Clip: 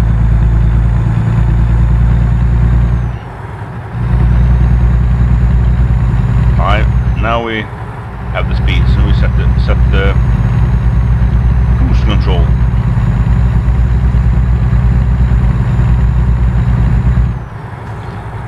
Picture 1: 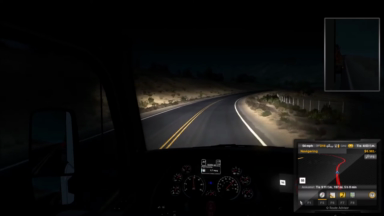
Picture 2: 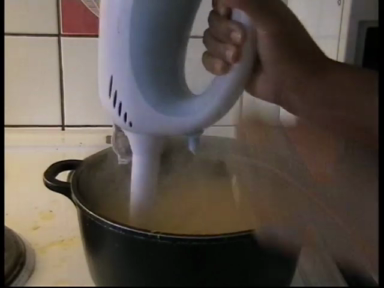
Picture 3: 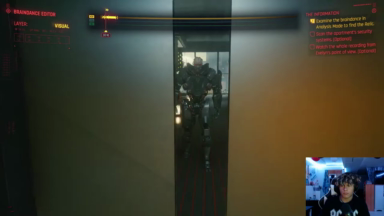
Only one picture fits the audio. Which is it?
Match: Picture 1